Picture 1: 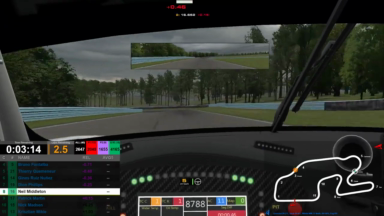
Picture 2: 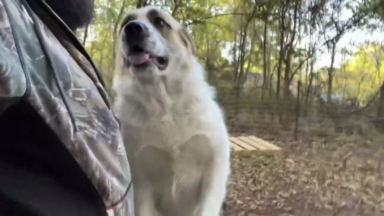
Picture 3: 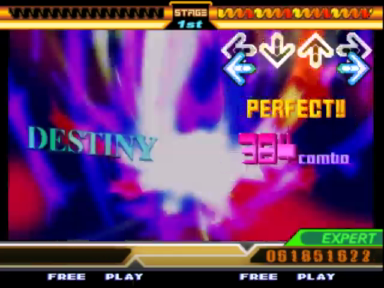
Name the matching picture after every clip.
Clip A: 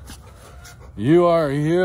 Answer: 2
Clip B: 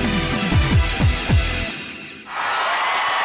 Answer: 3